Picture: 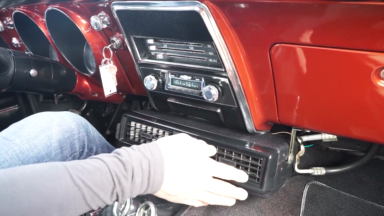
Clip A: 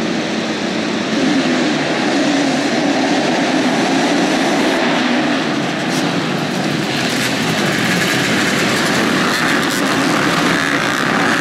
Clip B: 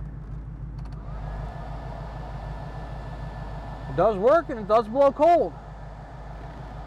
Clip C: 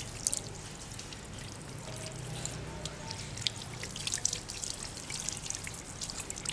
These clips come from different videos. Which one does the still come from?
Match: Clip B